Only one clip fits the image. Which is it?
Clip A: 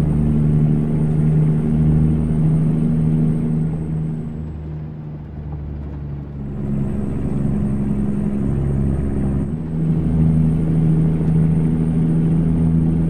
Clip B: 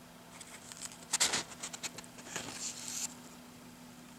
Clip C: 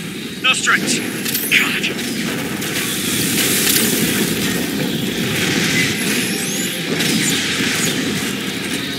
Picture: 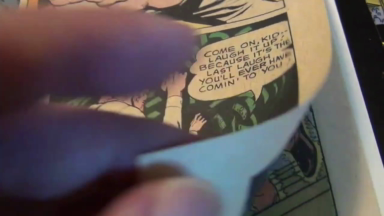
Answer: B